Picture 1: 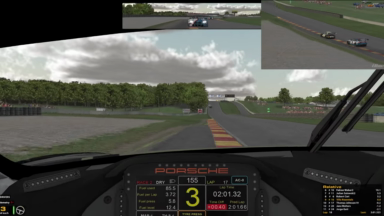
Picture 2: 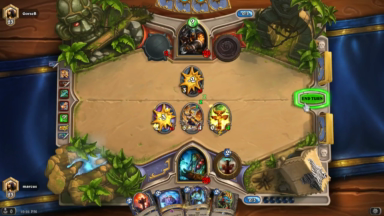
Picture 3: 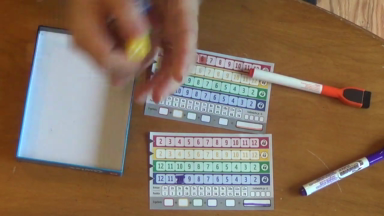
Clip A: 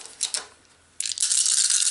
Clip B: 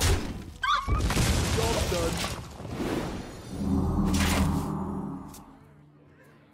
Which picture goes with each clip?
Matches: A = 3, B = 2